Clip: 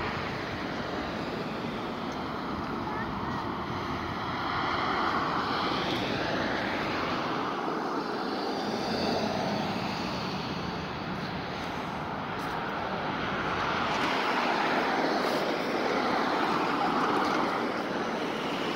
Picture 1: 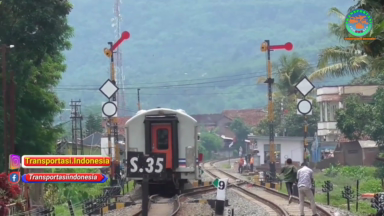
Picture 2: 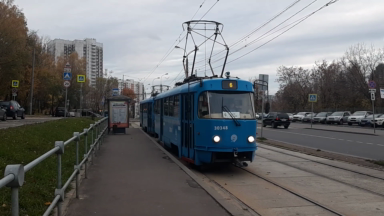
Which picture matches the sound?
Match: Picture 2